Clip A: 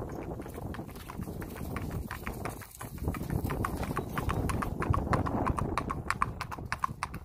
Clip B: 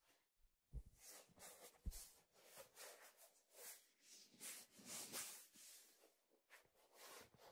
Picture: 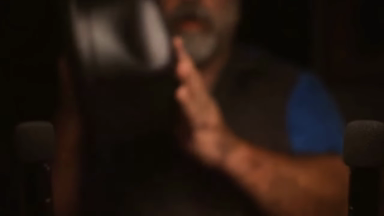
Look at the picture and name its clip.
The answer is B